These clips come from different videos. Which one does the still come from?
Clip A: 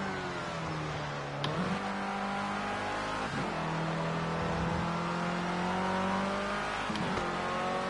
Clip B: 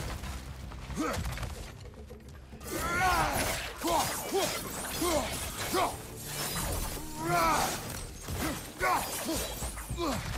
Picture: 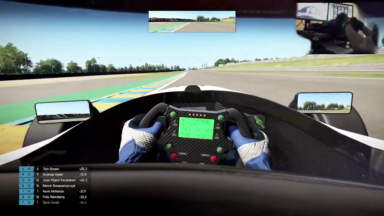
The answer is A